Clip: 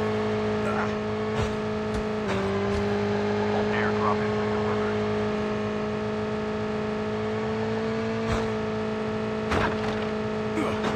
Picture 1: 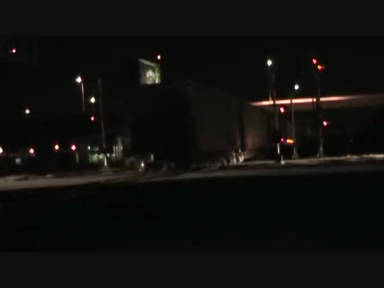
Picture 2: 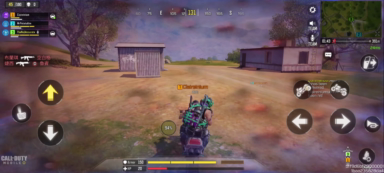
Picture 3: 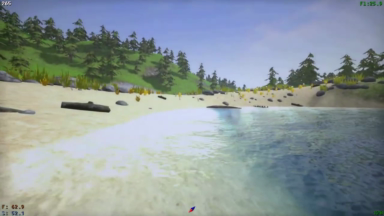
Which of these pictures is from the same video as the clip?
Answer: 2